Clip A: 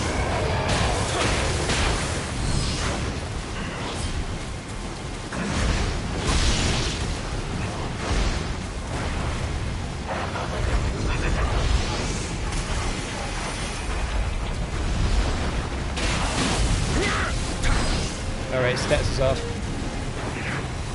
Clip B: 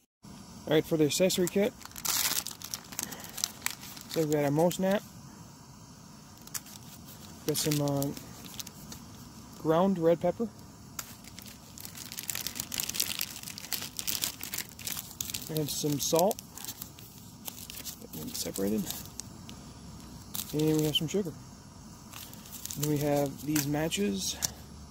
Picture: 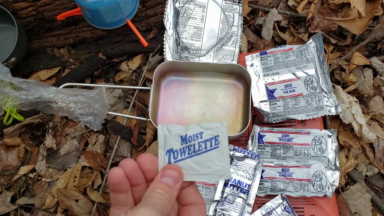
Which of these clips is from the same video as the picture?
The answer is B